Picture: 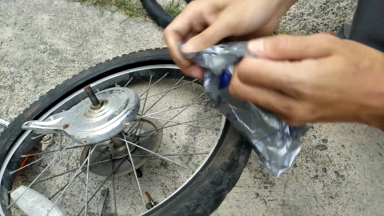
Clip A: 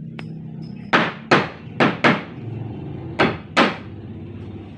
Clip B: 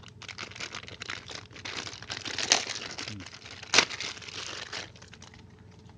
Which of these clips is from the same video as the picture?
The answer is B